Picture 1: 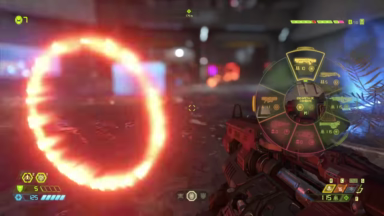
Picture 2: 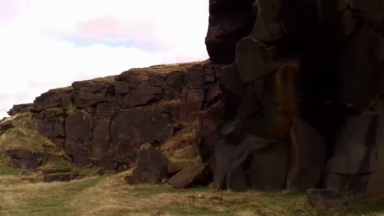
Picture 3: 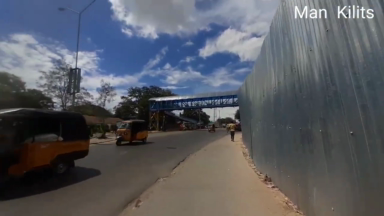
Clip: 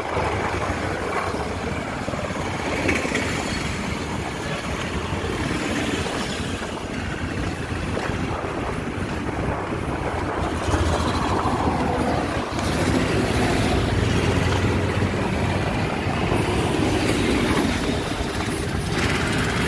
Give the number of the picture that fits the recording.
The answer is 3